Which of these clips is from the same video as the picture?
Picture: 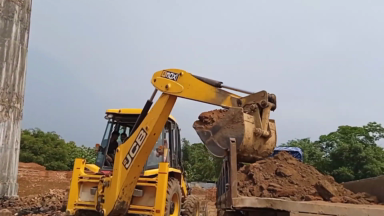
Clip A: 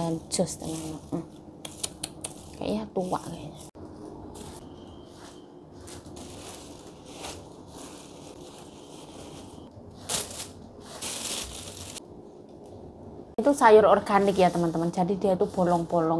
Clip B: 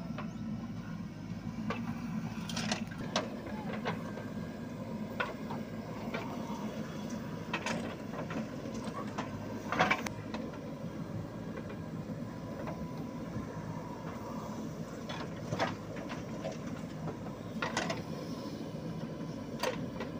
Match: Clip B